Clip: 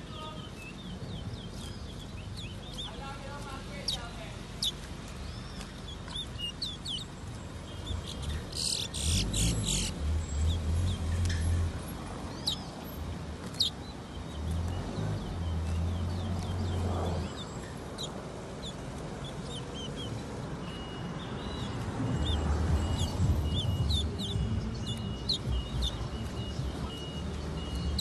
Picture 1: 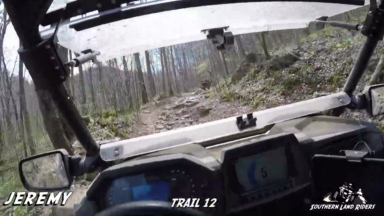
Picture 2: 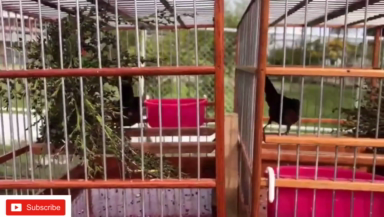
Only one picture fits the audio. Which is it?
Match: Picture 2